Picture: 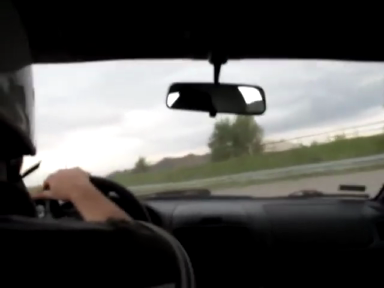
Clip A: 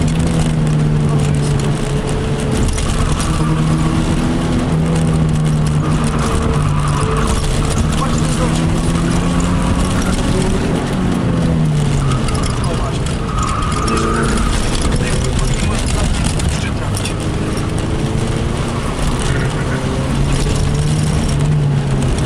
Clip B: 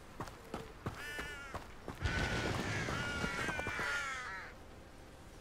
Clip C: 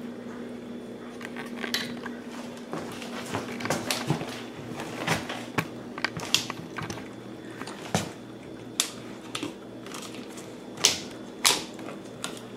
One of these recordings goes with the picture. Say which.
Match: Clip A